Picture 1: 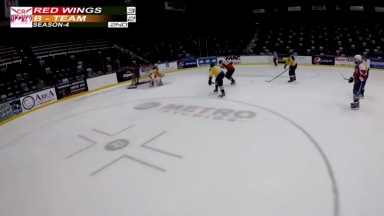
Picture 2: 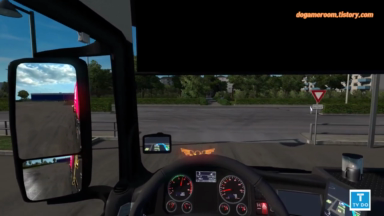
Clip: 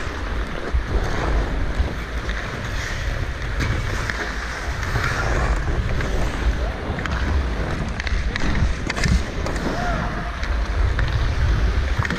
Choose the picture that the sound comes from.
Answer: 1